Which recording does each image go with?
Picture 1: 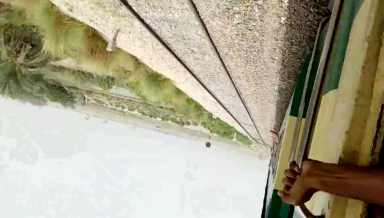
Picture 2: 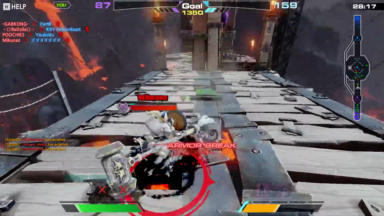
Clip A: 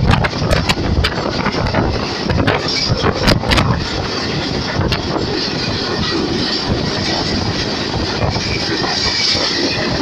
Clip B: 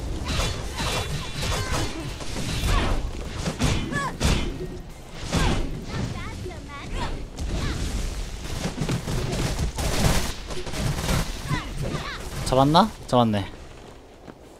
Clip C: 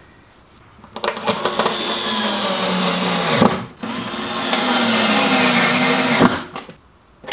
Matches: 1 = A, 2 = B